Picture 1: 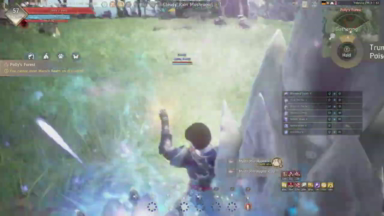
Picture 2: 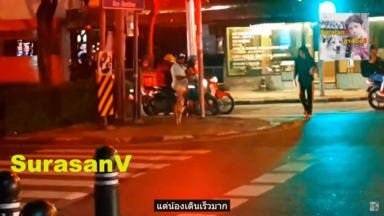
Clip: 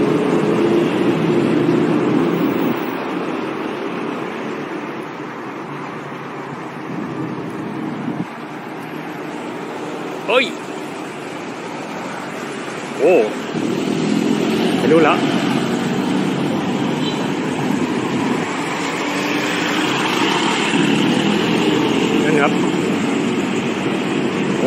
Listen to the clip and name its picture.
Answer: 2